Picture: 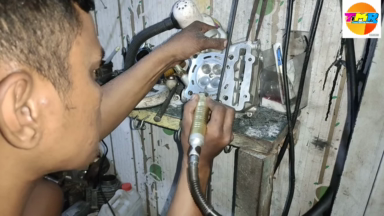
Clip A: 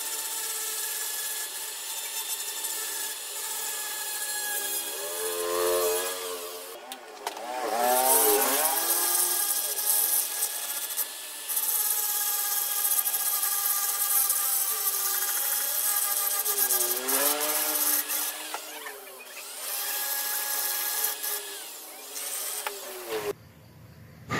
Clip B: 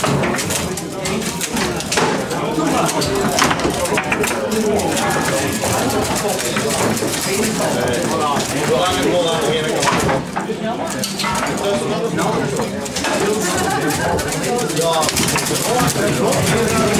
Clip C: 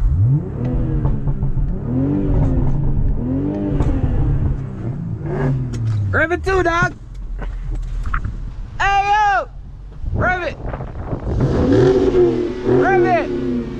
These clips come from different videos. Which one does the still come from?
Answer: A